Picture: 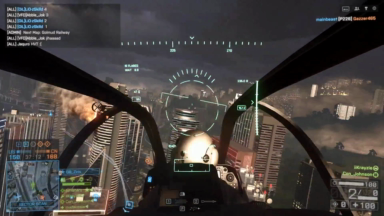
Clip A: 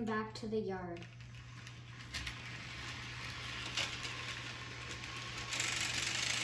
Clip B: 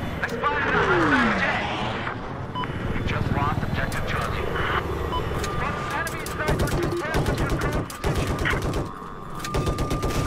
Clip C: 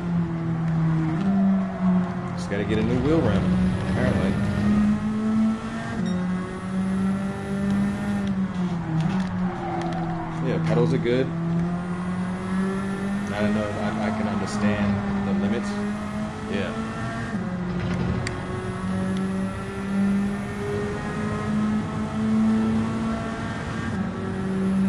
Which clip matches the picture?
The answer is B